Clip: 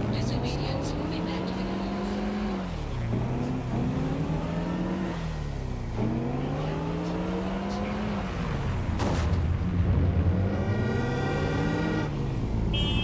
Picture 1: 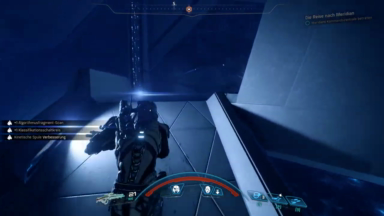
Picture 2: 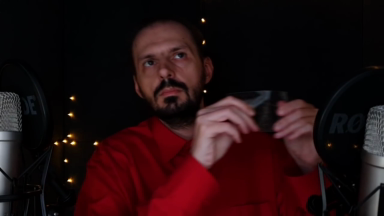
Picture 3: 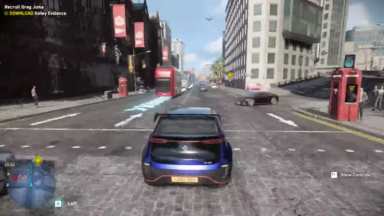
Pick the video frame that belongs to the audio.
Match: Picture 3